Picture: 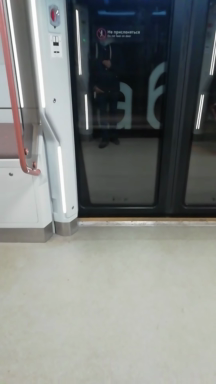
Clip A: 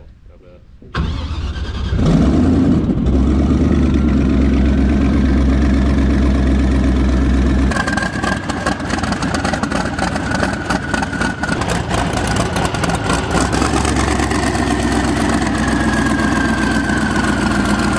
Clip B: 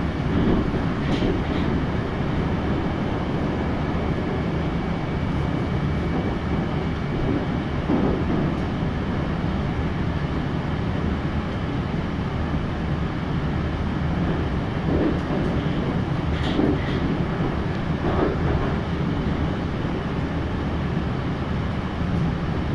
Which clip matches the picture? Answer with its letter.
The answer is B